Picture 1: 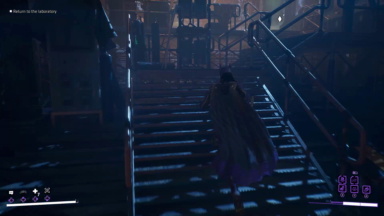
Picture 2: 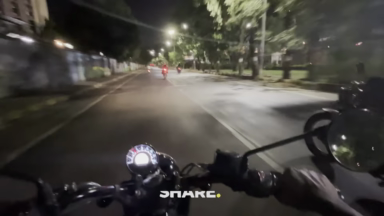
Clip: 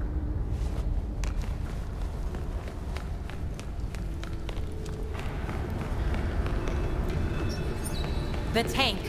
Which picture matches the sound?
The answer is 1